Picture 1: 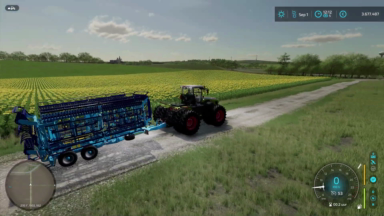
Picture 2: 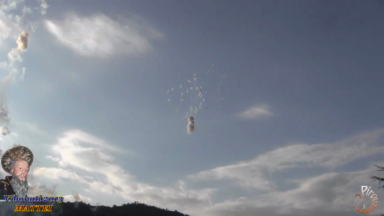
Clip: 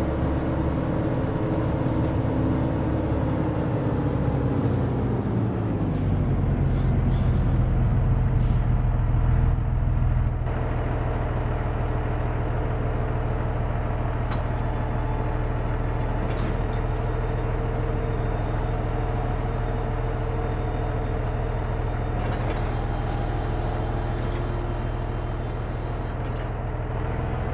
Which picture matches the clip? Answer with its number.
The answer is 1